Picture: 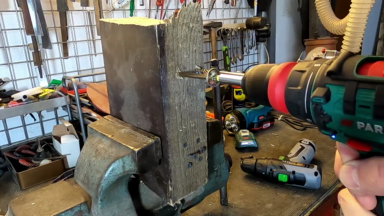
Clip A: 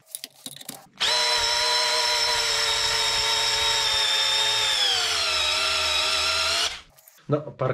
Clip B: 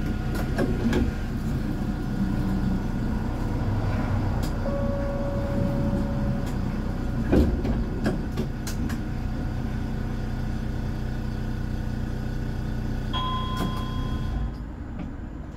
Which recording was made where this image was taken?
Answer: A